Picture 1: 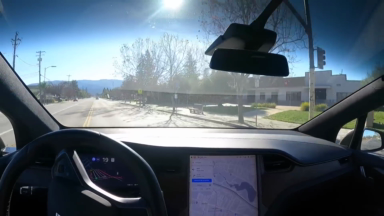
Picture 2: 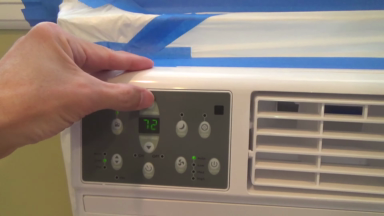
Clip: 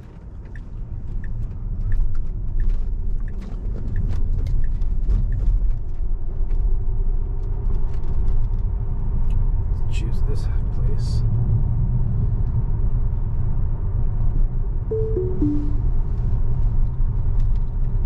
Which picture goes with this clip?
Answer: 1